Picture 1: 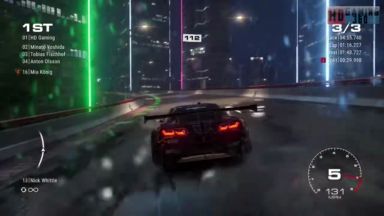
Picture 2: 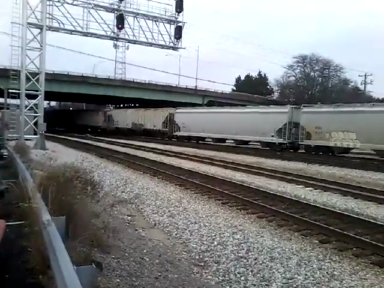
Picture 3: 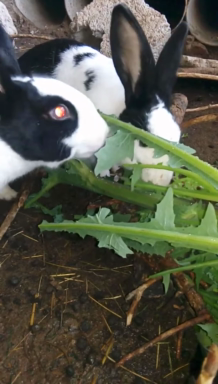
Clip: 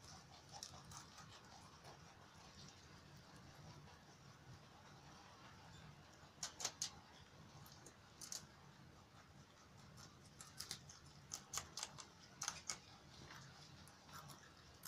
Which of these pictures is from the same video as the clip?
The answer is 3